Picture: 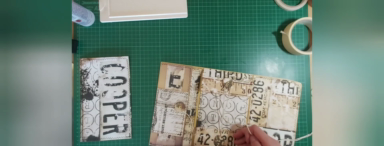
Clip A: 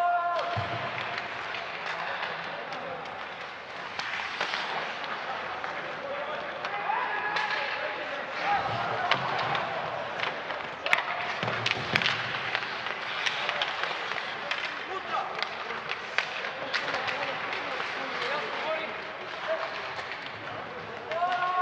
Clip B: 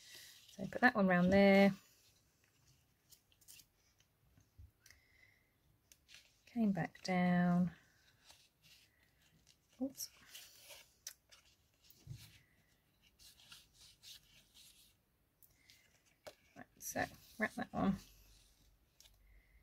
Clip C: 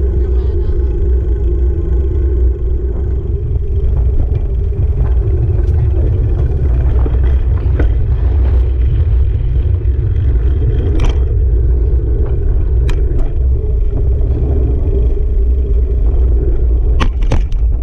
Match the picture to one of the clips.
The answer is B